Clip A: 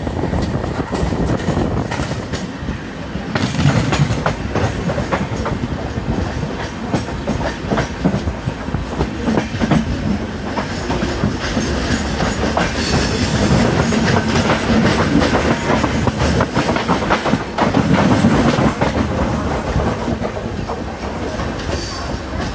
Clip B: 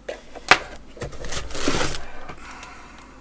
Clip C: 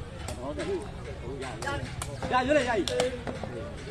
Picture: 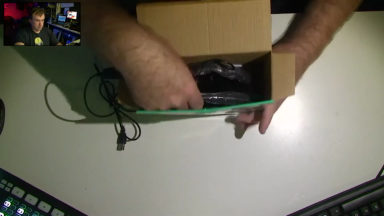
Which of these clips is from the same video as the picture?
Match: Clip B